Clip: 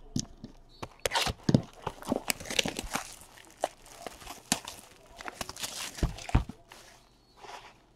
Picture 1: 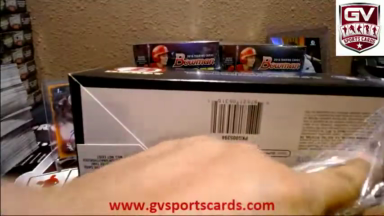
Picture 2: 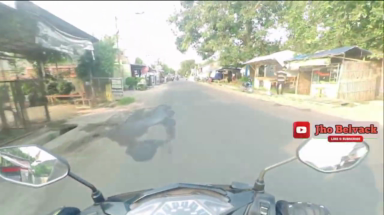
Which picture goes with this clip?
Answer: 1